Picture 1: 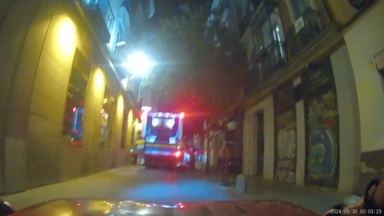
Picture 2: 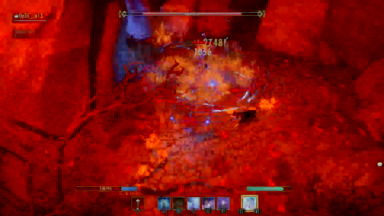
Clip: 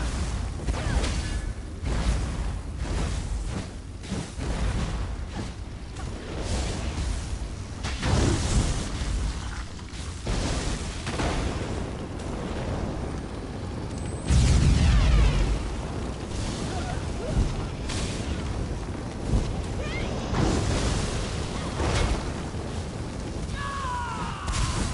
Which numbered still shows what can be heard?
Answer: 2